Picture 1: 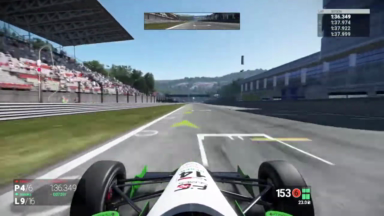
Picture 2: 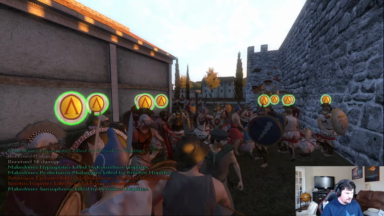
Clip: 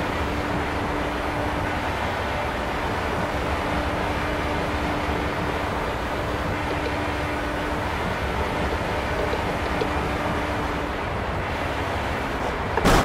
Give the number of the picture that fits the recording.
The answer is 1